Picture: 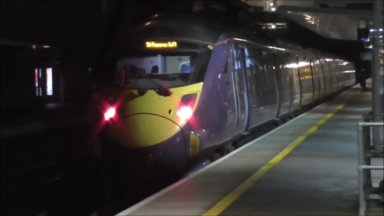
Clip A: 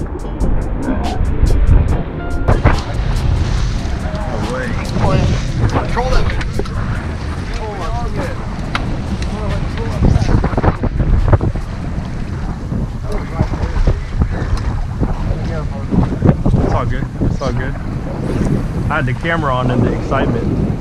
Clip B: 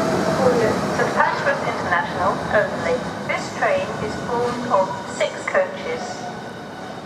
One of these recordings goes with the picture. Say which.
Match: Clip B